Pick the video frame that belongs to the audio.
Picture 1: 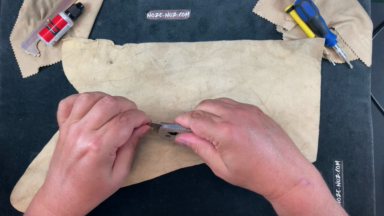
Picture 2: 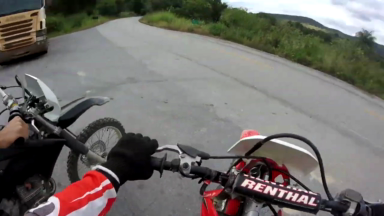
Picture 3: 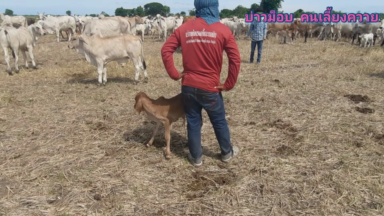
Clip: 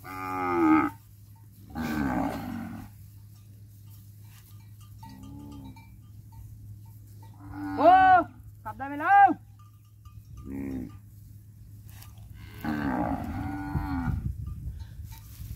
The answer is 3